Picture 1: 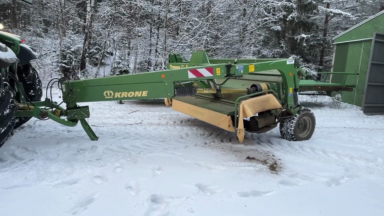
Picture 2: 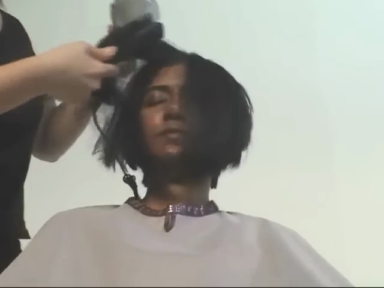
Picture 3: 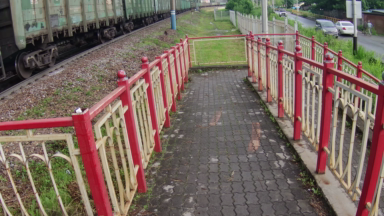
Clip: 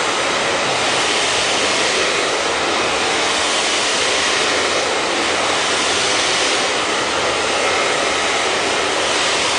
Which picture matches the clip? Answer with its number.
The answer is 2